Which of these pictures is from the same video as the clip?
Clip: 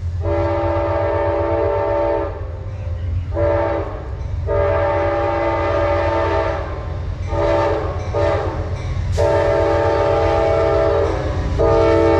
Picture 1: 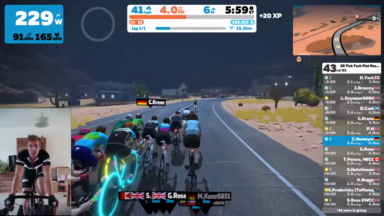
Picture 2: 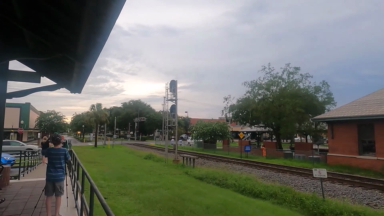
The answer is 2